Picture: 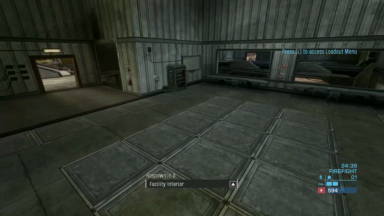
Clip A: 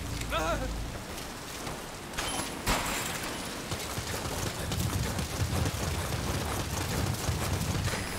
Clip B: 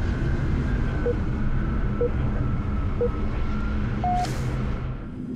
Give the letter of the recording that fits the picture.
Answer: B